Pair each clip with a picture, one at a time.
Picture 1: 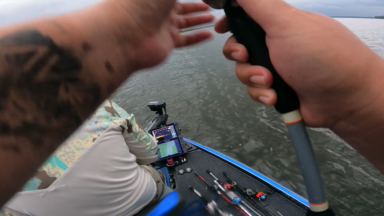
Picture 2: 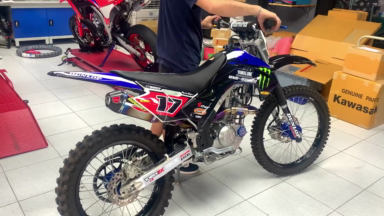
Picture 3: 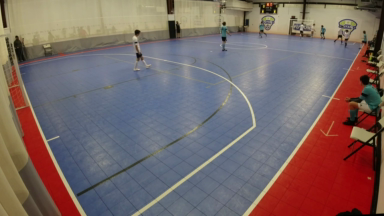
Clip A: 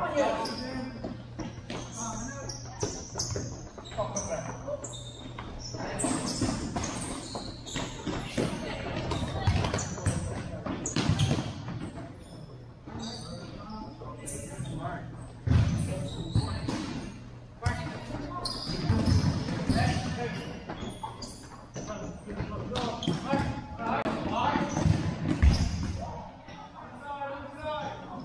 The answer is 3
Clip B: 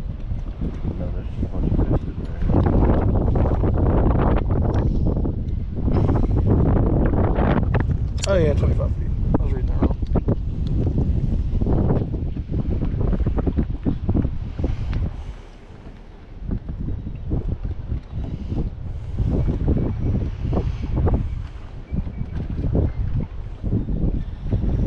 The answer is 1